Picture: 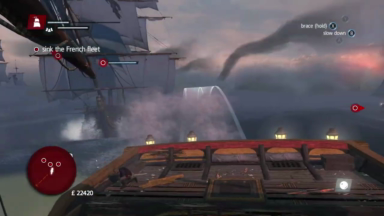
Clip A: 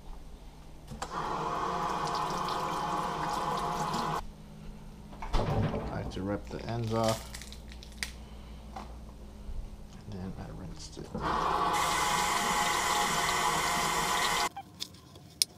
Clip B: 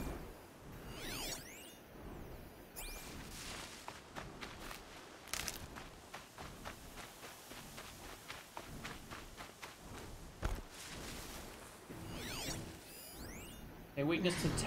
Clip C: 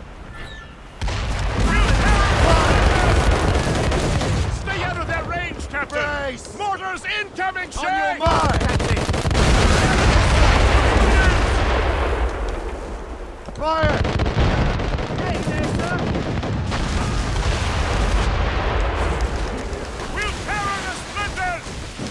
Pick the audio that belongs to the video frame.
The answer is C